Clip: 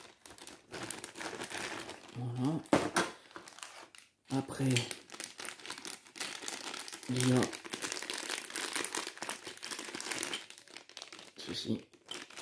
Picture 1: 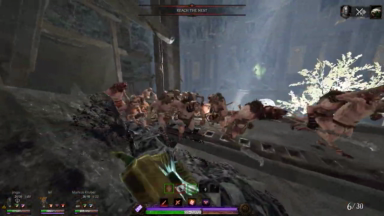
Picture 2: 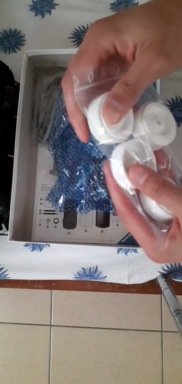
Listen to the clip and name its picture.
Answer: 2